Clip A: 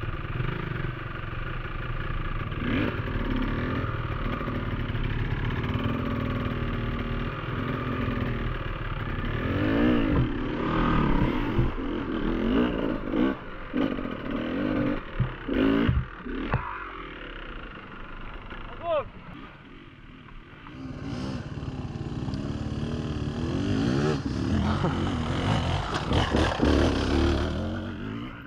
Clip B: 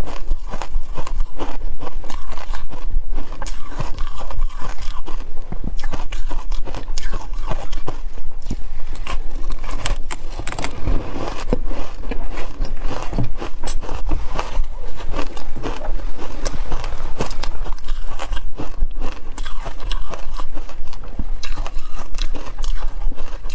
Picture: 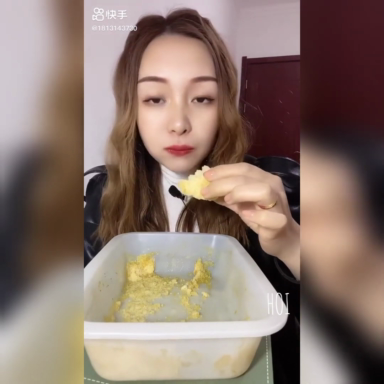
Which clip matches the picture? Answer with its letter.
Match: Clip B